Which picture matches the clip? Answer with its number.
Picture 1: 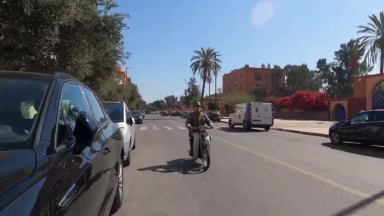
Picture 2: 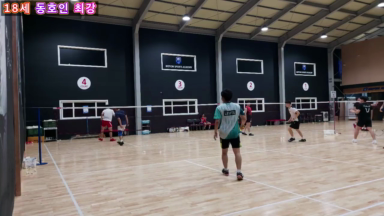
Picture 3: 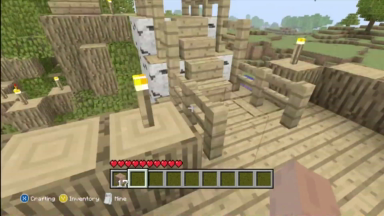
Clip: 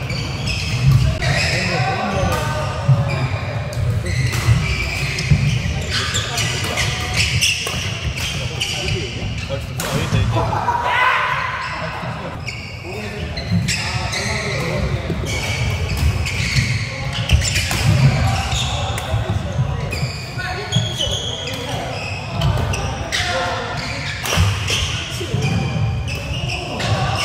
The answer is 2